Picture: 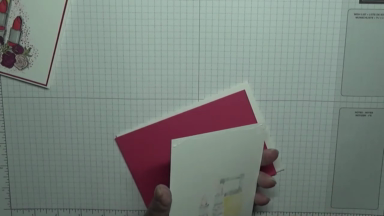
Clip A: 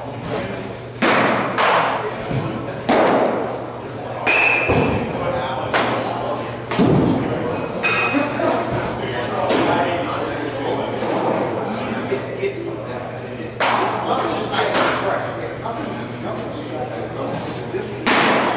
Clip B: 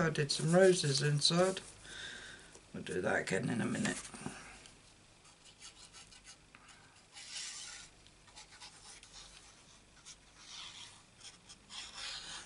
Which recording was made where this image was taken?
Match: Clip B